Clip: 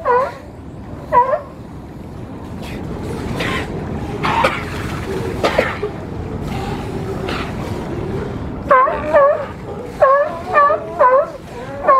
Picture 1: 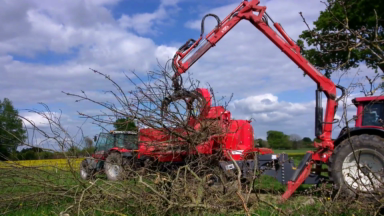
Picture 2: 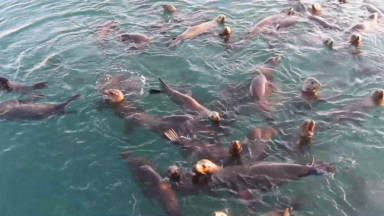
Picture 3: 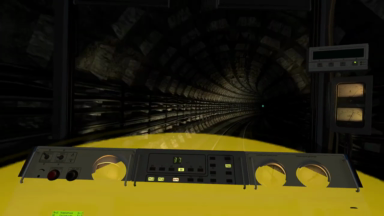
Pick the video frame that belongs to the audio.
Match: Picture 2